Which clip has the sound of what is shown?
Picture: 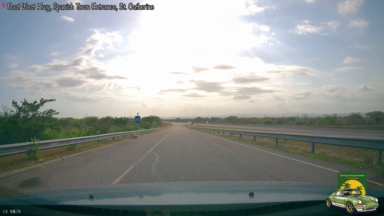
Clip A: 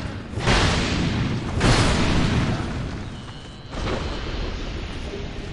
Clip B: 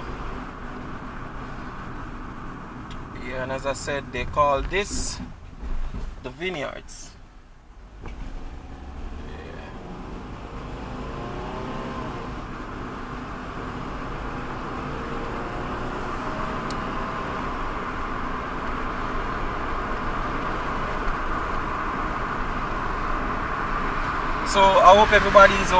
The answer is B